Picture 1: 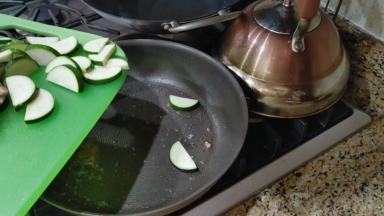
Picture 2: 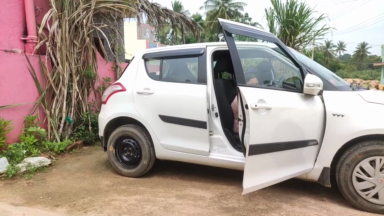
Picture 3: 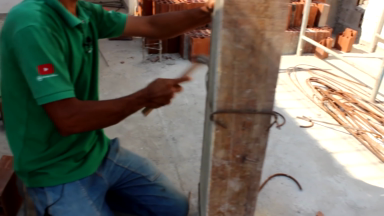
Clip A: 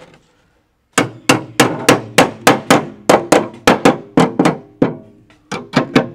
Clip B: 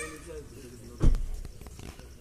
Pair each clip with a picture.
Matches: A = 3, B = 2